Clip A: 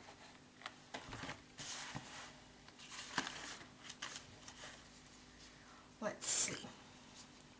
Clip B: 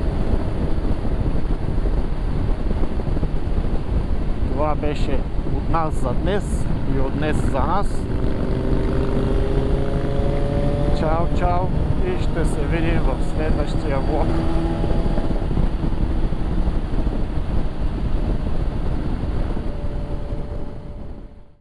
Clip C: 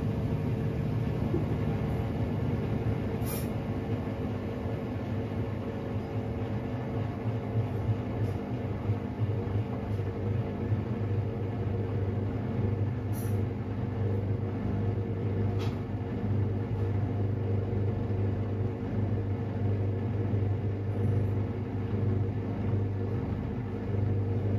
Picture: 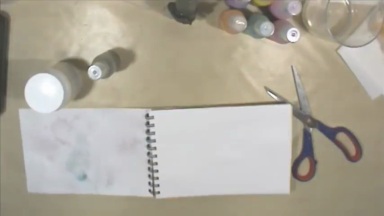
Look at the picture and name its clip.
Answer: A